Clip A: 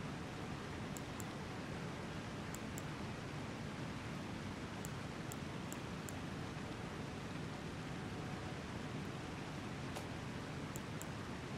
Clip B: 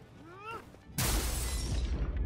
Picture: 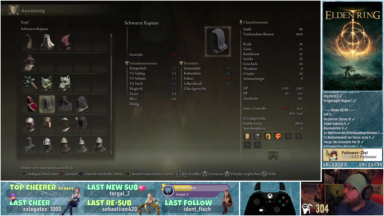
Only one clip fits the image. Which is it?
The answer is A